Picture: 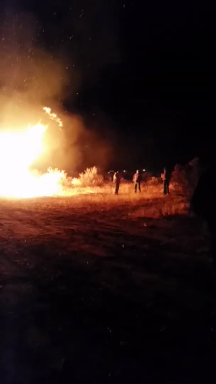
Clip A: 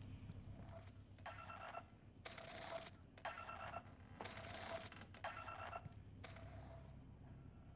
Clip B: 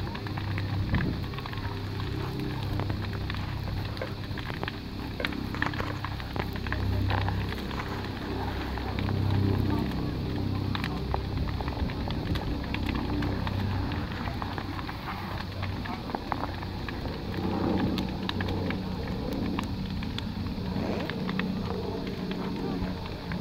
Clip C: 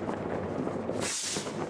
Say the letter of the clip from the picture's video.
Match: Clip B